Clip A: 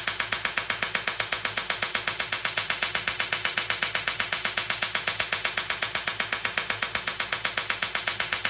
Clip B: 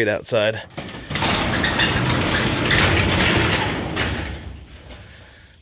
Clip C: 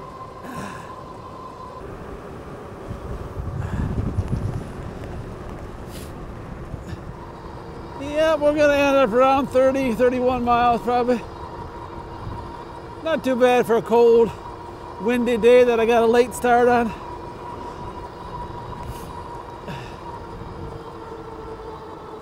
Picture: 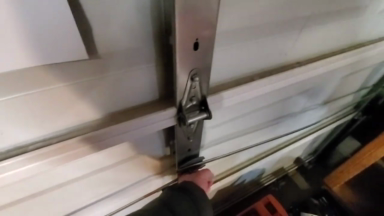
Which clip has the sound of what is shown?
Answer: B